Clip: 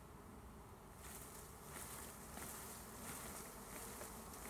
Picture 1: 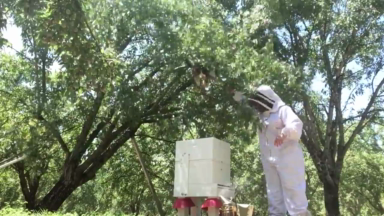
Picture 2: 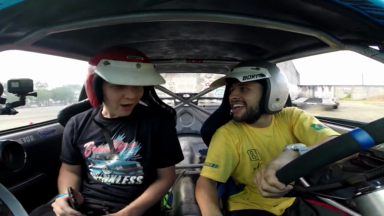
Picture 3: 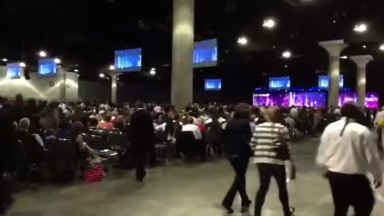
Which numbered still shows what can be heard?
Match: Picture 1